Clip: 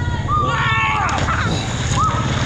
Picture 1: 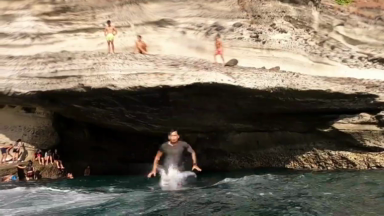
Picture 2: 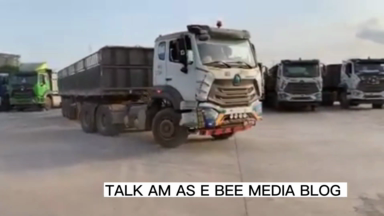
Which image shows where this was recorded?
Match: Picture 1